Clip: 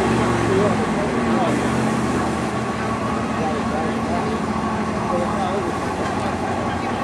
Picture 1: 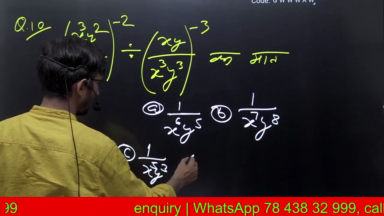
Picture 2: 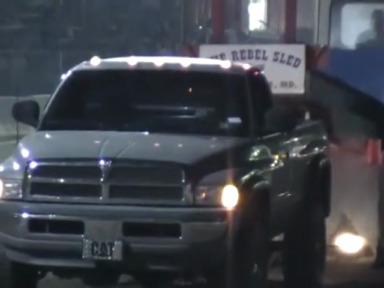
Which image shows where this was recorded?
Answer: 2